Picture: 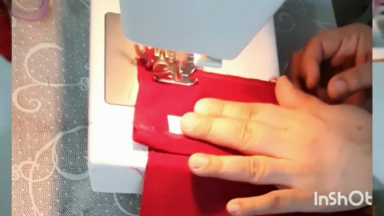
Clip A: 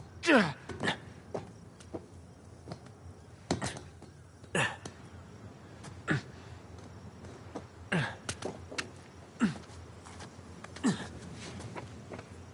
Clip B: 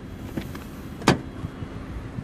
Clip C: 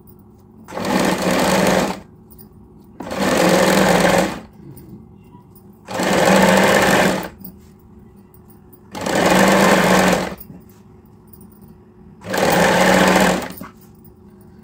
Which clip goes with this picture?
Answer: C